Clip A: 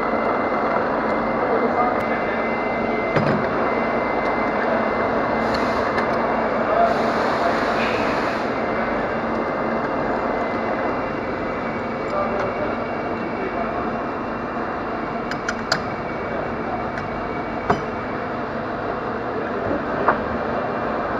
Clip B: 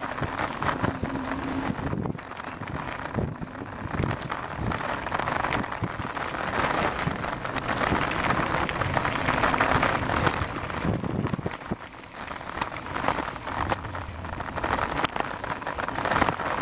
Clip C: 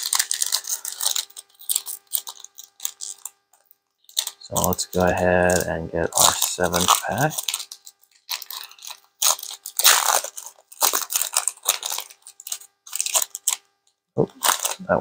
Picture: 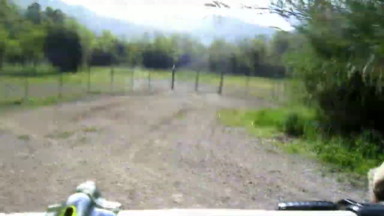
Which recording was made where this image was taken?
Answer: B